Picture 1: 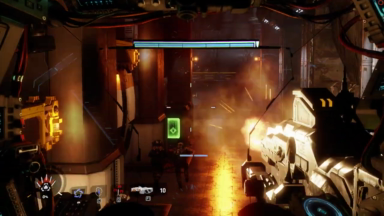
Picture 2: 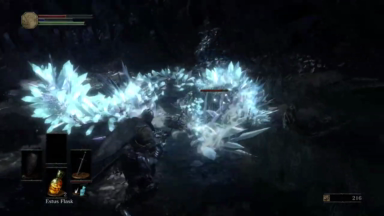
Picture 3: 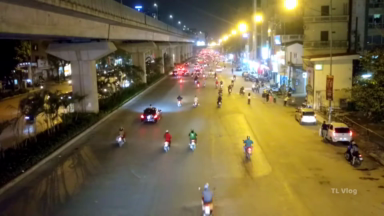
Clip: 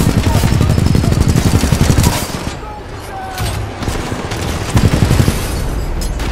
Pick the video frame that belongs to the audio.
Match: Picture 1